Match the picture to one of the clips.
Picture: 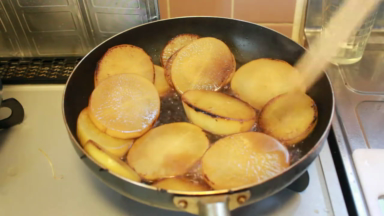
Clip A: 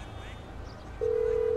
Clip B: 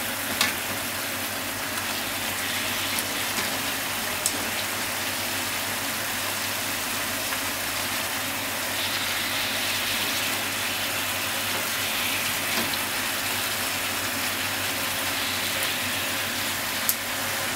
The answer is B